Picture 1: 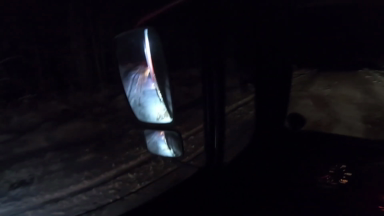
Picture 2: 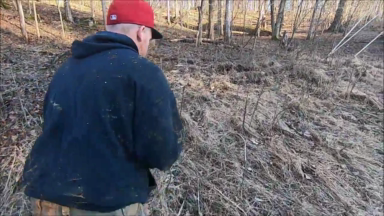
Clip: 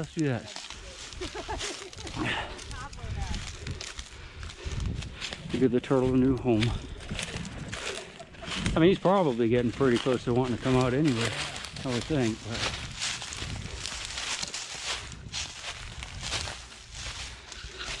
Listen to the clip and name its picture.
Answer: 2